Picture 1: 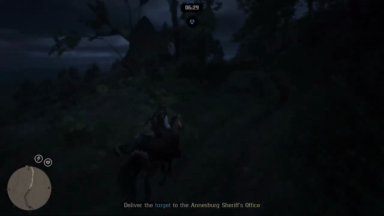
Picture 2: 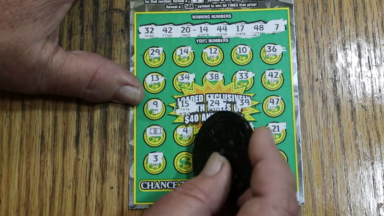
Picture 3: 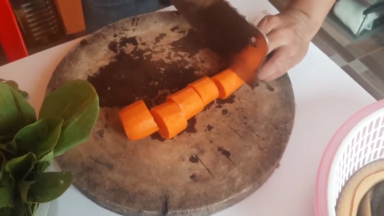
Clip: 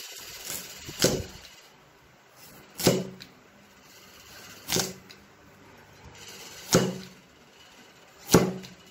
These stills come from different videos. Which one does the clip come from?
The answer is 3